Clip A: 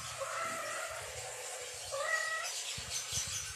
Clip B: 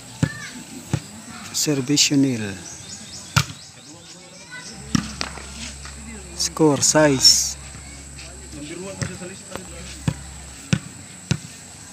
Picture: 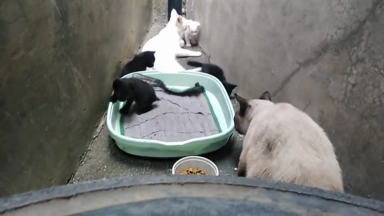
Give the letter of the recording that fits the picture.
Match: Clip A